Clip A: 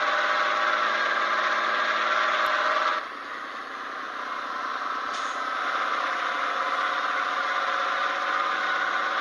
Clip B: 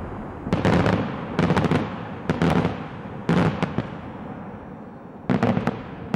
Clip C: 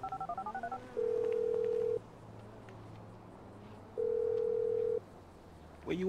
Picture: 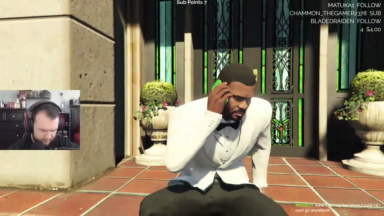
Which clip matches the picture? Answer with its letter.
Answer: C